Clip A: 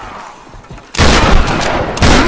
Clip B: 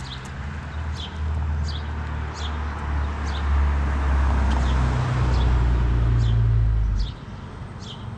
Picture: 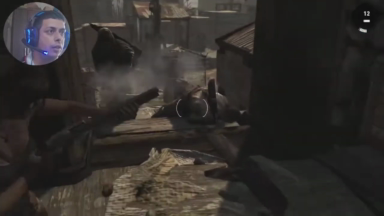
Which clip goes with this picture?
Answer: A